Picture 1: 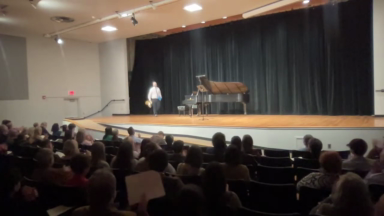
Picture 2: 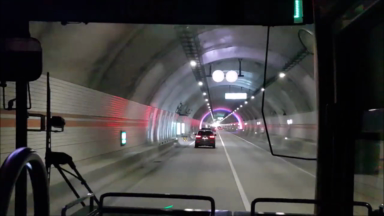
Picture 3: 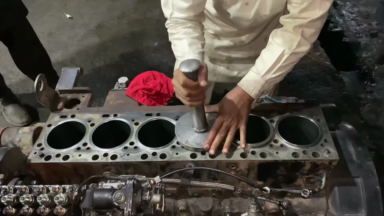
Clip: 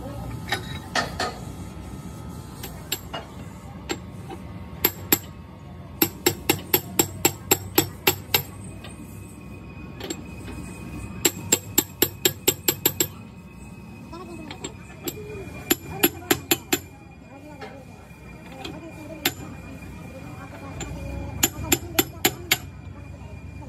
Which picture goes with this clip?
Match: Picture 3